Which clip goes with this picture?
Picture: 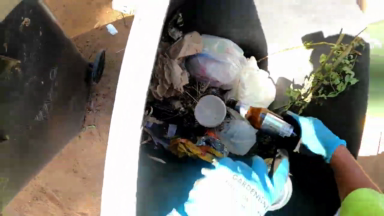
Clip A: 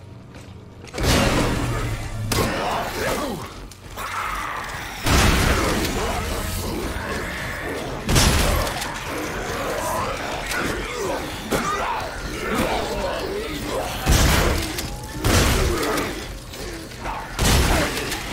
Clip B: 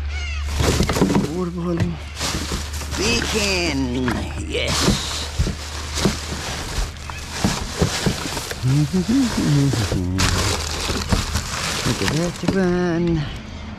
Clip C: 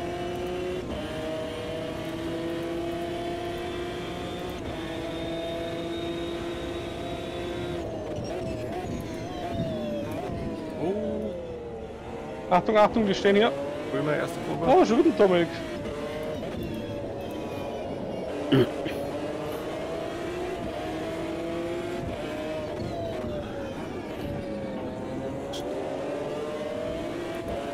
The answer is B